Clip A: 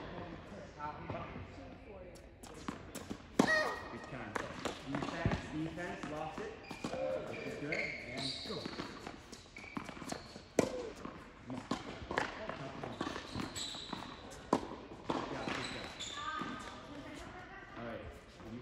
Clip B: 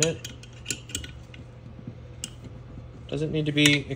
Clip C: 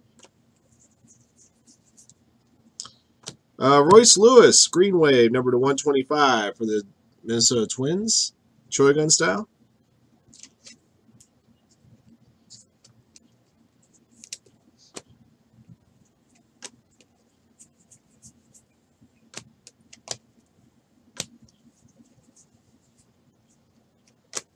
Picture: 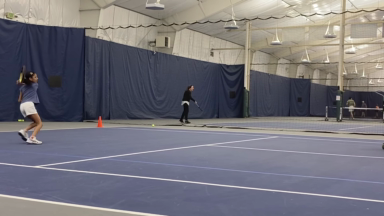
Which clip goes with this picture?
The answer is A